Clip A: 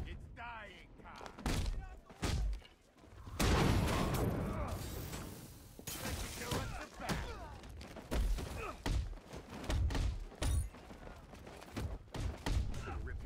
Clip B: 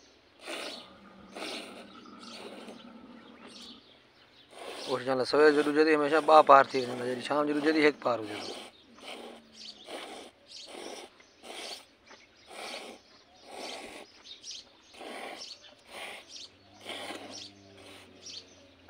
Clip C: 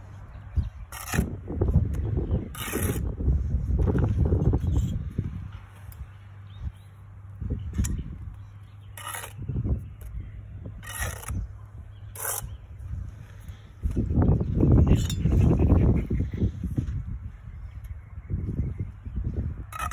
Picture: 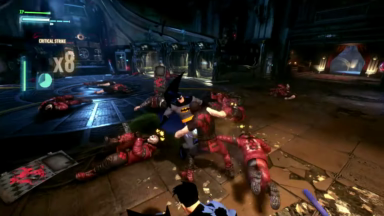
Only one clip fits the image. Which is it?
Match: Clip A